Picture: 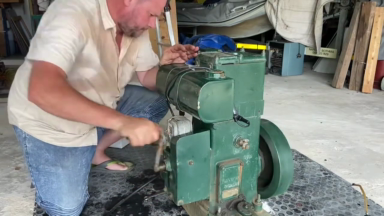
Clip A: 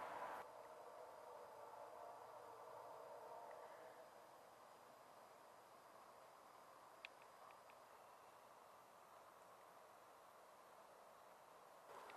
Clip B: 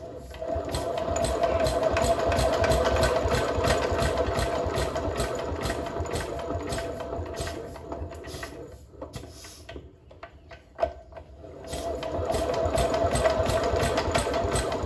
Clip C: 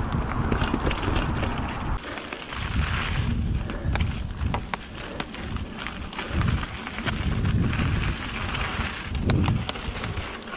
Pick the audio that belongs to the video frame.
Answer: B